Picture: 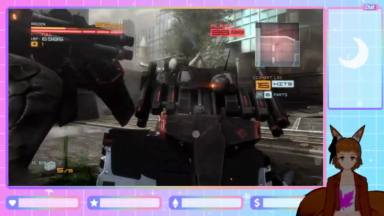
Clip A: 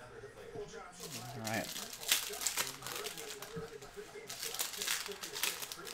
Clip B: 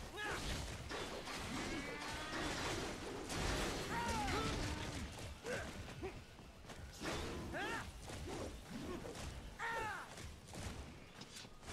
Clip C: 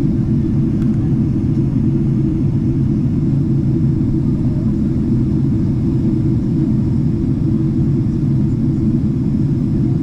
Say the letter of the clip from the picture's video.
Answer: B